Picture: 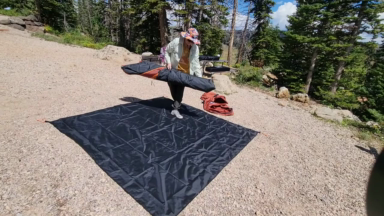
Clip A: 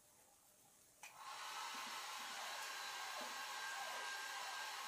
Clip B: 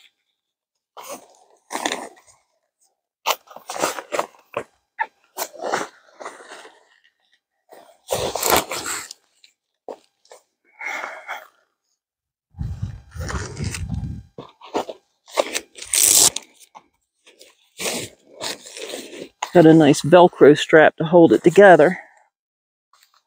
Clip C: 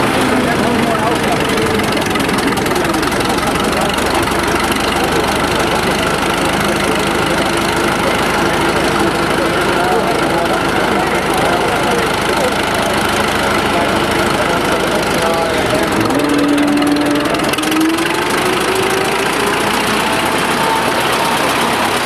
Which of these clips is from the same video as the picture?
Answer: B